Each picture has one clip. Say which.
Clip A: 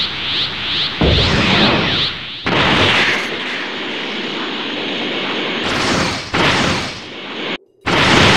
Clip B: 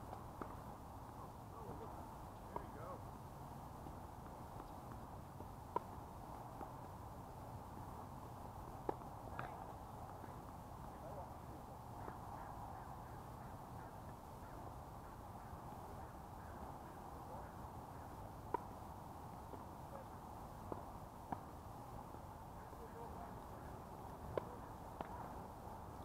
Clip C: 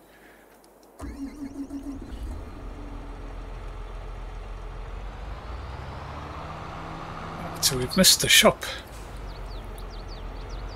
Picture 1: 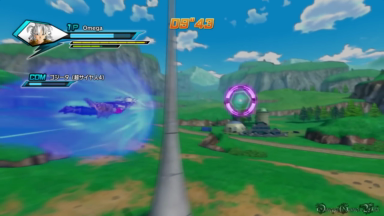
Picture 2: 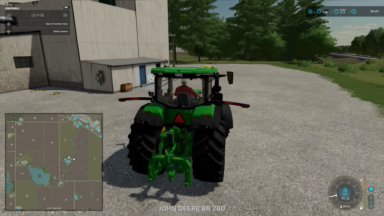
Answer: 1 A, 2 C